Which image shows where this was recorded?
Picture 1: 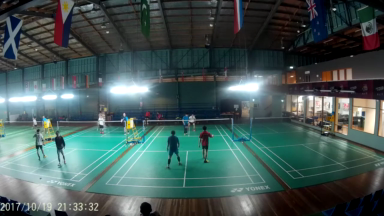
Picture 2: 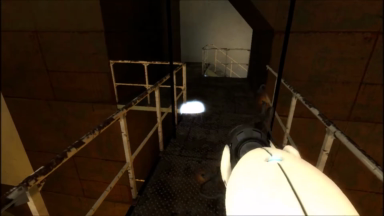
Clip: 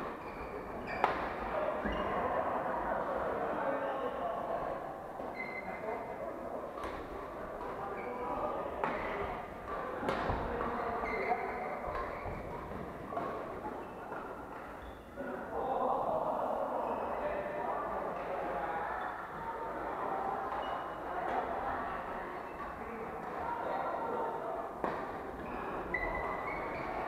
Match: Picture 1